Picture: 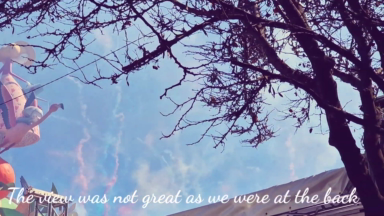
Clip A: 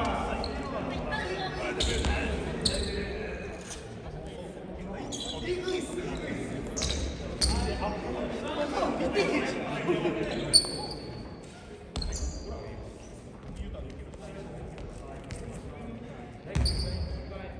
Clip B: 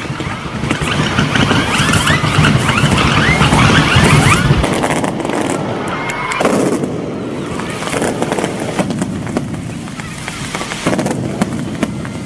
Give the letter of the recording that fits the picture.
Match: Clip B